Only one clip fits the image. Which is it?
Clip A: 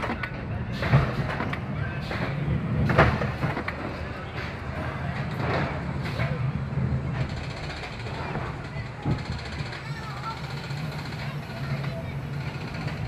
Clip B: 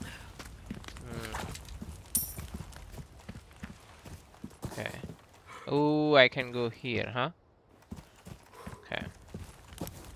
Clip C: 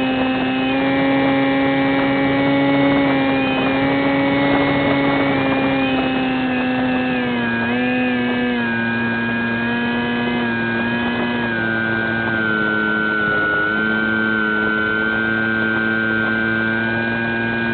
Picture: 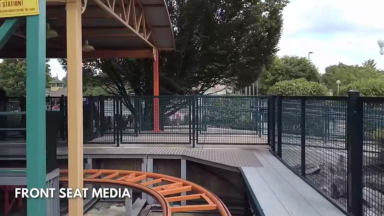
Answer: A